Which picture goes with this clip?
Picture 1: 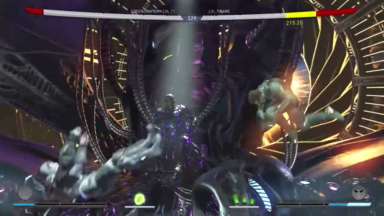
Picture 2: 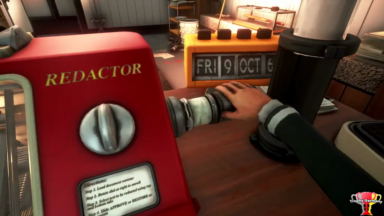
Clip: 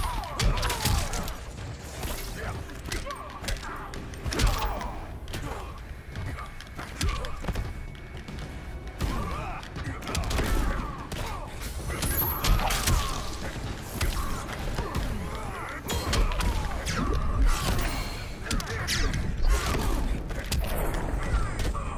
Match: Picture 1